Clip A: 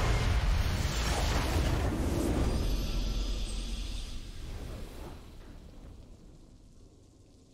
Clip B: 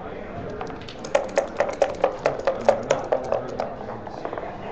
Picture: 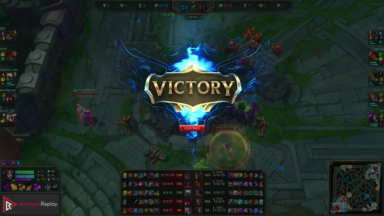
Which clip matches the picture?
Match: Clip A